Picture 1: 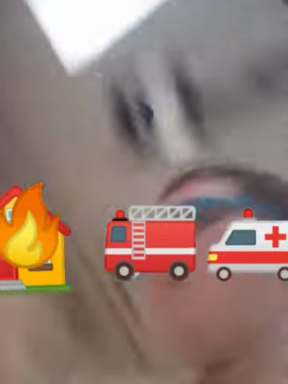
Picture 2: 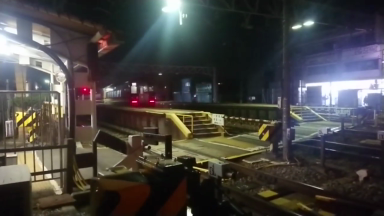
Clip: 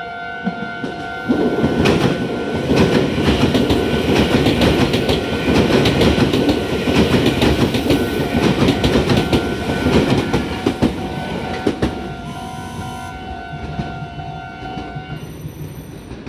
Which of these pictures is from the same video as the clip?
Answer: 2